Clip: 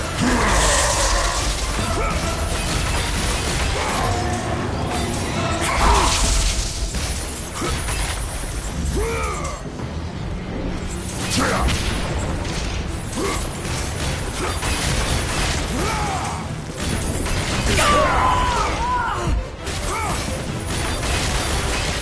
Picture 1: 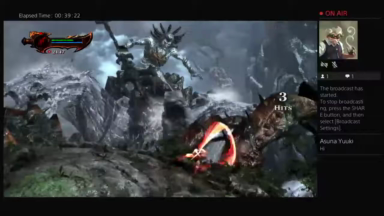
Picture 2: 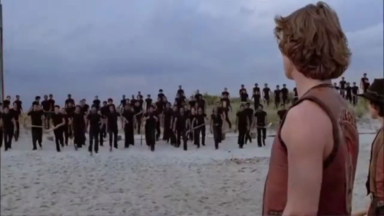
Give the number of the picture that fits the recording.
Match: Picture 1